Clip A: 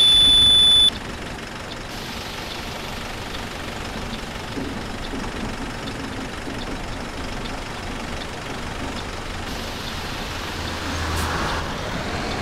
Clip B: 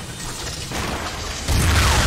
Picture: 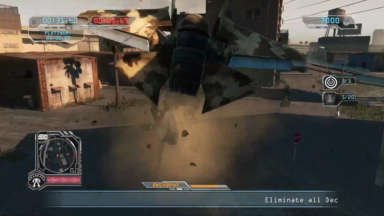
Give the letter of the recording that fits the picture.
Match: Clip B